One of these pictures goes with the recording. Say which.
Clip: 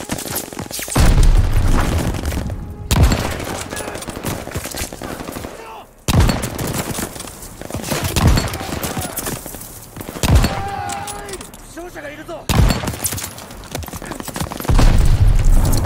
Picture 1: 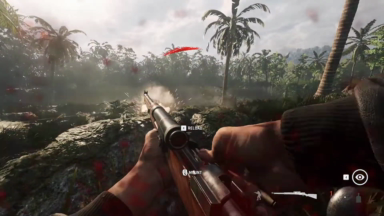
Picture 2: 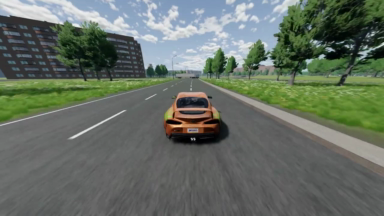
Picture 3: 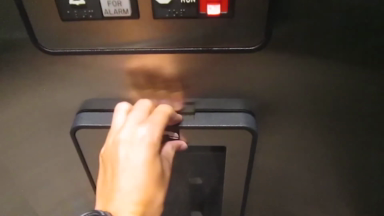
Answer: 1